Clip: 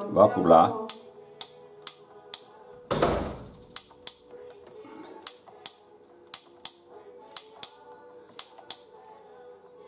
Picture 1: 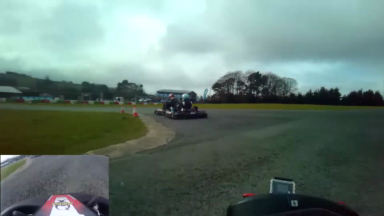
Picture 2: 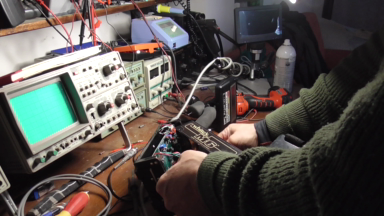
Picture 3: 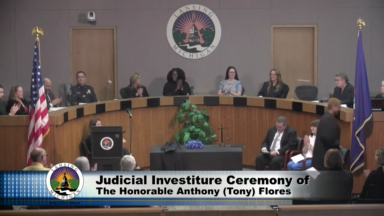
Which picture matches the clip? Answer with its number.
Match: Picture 2